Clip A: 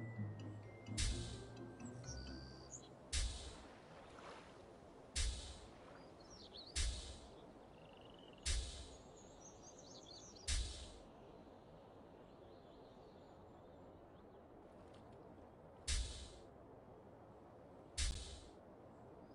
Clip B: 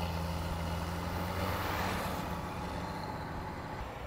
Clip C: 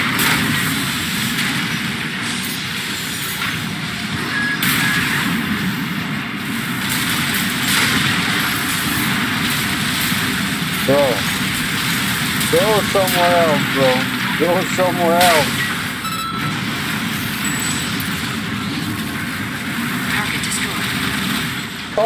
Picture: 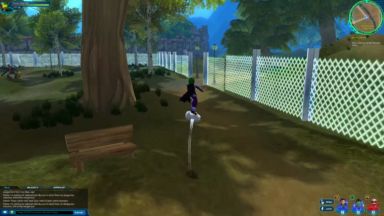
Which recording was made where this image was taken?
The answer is A